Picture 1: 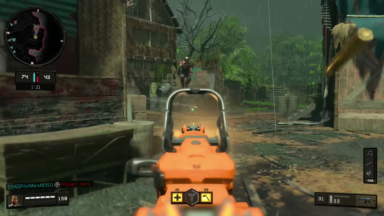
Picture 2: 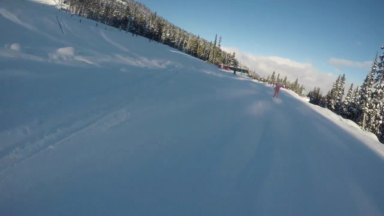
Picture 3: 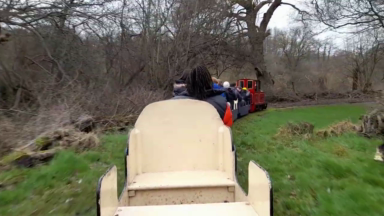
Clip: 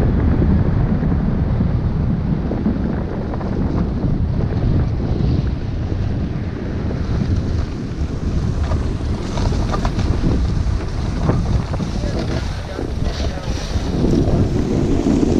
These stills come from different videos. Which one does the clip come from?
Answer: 2